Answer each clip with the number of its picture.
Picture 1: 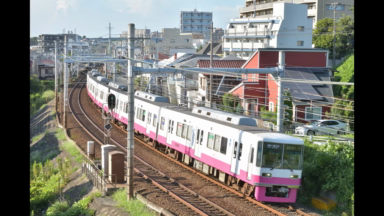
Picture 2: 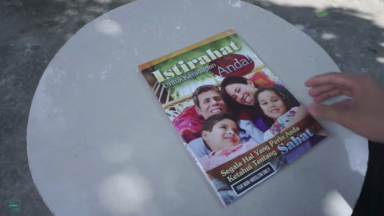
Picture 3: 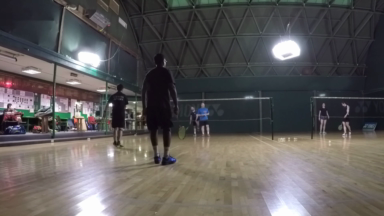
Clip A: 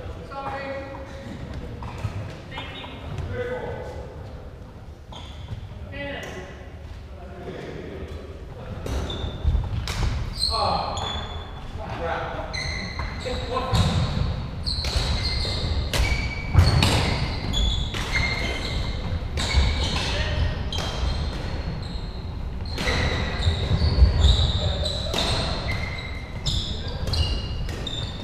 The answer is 3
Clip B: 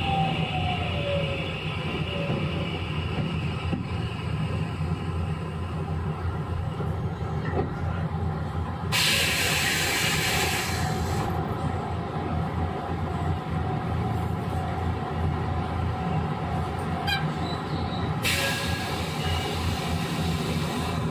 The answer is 1